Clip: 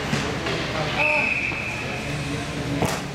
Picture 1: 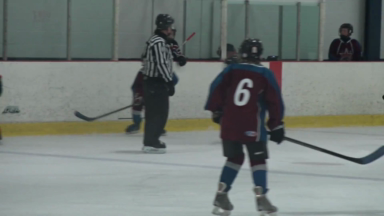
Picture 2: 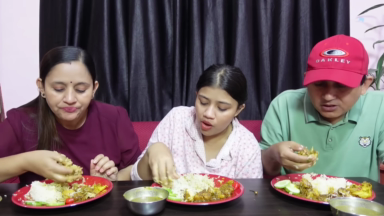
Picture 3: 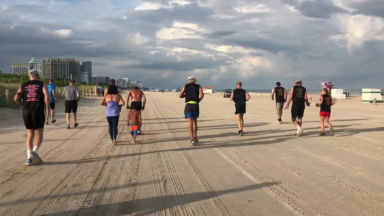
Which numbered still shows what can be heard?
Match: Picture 1